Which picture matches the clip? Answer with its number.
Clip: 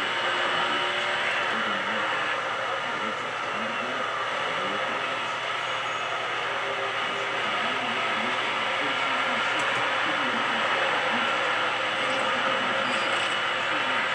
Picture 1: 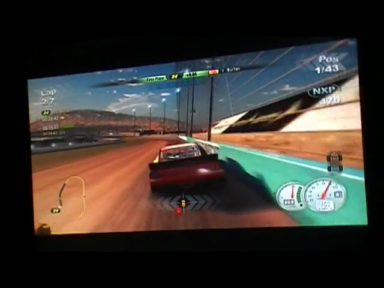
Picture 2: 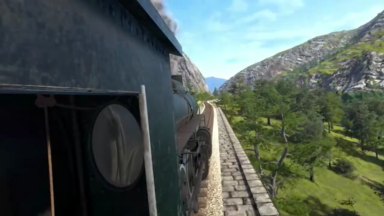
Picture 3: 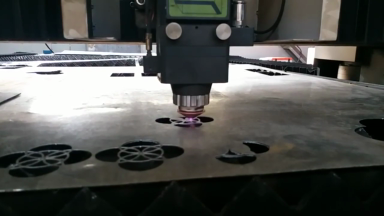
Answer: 1